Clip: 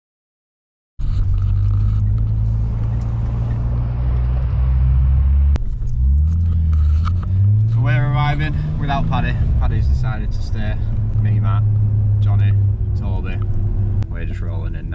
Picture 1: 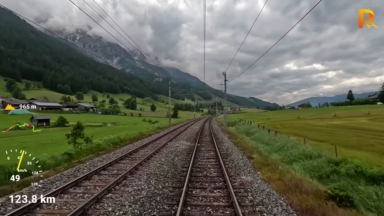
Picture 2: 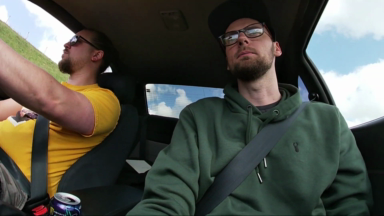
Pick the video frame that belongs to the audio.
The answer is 2